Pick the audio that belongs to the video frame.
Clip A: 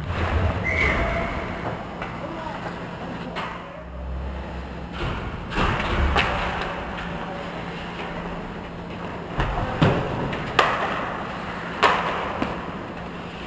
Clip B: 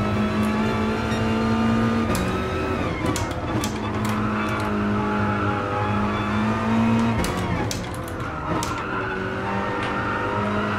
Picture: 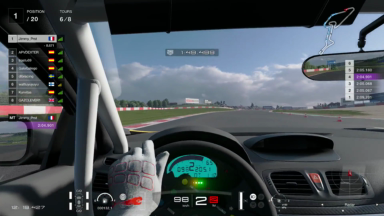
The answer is B